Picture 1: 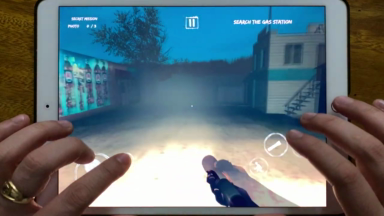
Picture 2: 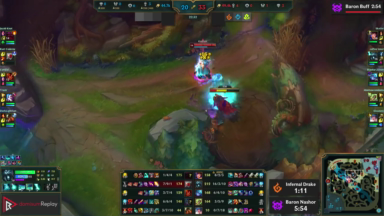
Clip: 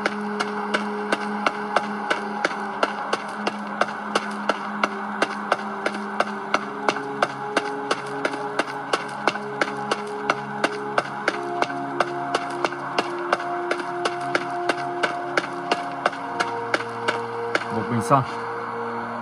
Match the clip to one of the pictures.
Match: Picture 1